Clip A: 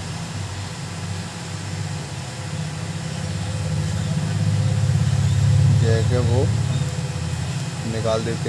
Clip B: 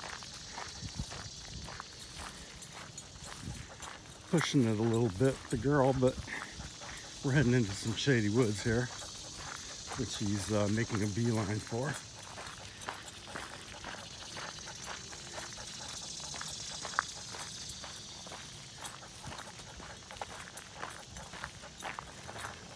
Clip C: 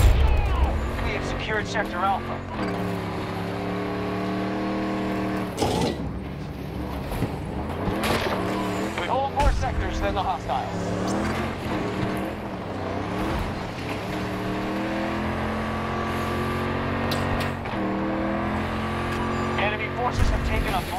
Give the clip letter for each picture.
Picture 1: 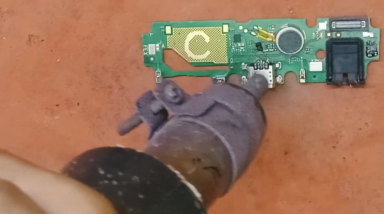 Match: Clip A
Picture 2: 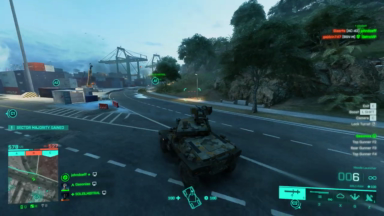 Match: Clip C